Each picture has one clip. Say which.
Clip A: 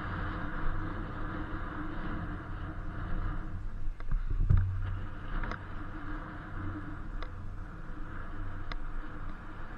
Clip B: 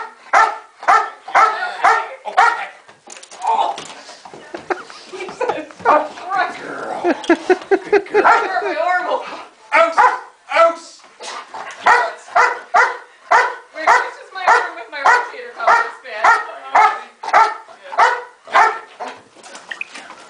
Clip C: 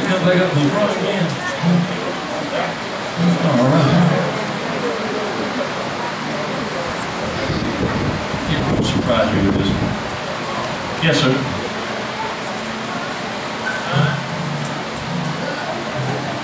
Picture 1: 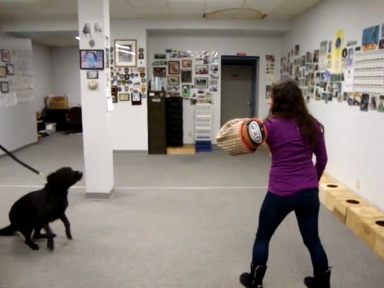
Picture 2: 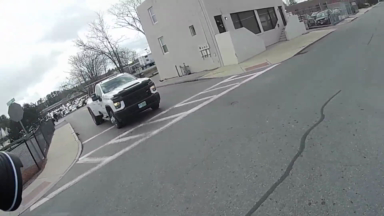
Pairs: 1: B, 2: A